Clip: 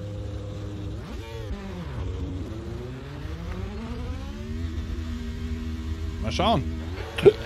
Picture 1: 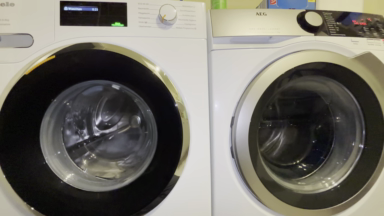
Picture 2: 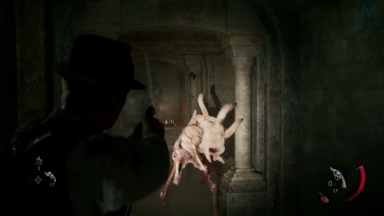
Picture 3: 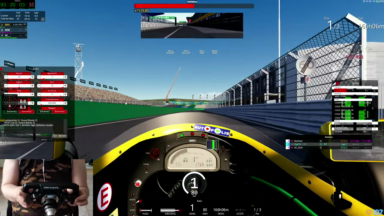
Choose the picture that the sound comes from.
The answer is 3